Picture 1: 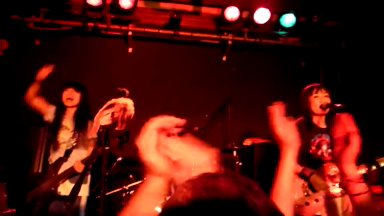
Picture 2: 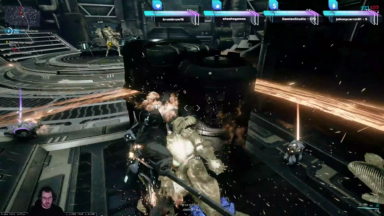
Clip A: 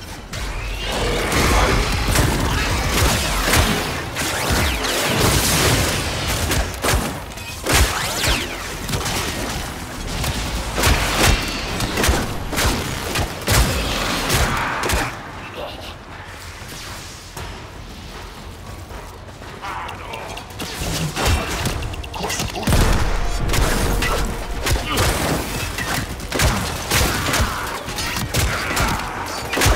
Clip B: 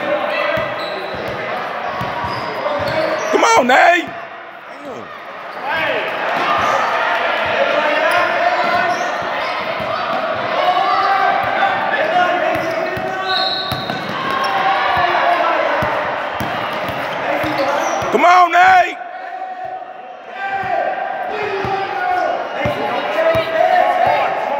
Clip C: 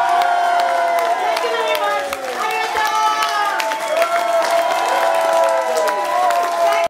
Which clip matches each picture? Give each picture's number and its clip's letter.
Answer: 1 C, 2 A